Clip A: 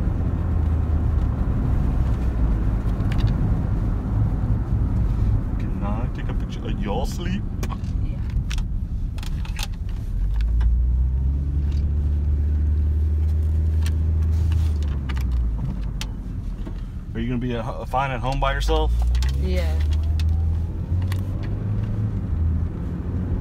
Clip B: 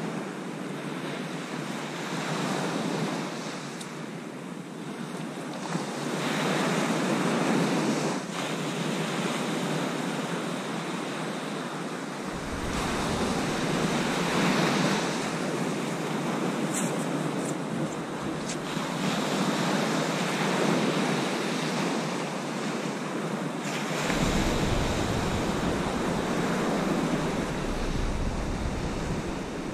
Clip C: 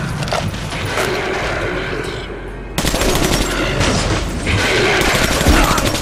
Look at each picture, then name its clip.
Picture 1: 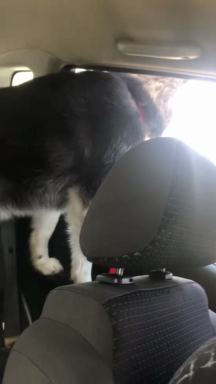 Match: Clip A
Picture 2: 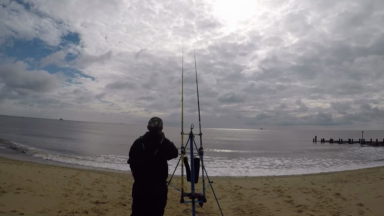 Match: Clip B